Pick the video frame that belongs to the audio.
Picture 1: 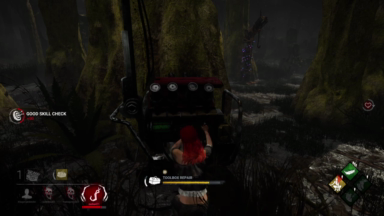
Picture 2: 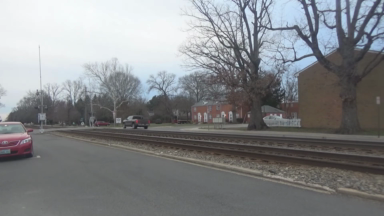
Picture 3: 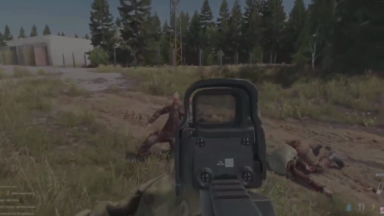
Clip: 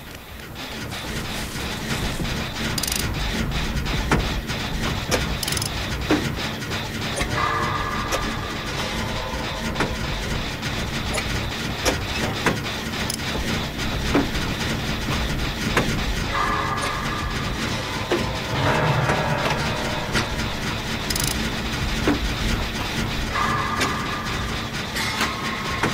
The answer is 1